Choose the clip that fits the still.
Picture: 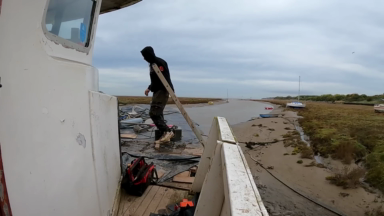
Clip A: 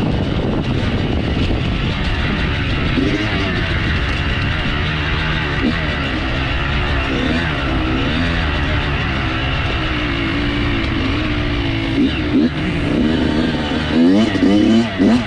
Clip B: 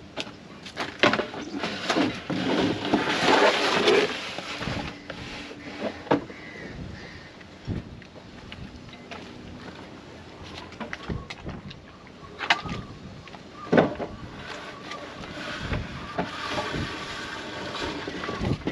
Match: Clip B